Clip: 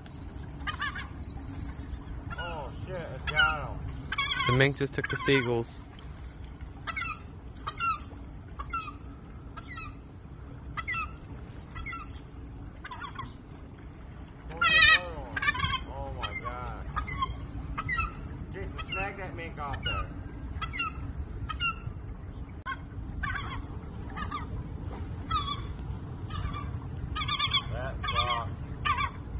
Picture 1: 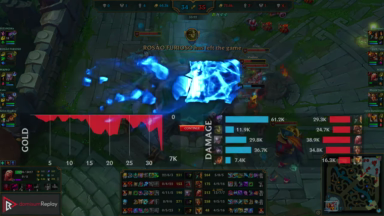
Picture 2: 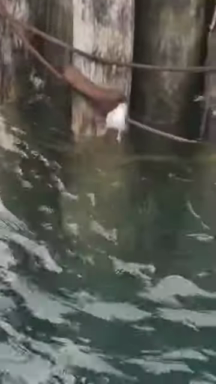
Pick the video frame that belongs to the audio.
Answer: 2